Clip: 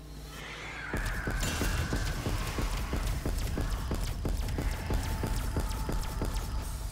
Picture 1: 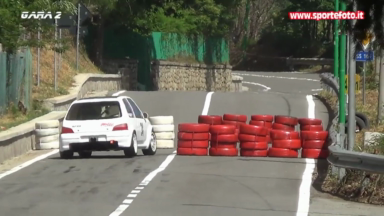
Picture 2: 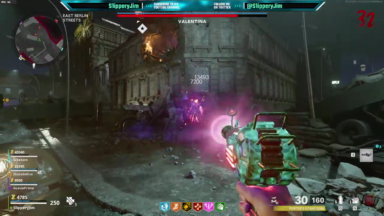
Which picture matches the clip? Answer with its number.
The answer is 2